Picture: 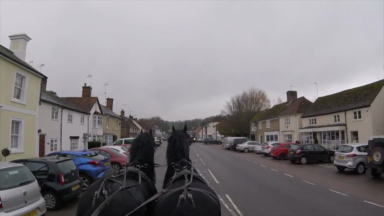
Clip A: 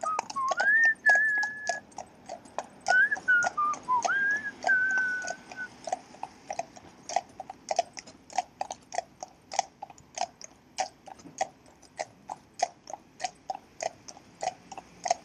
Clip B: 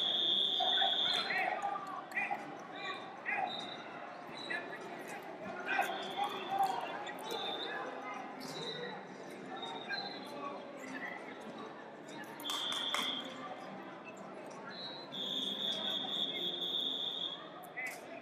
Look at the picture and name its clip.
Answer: A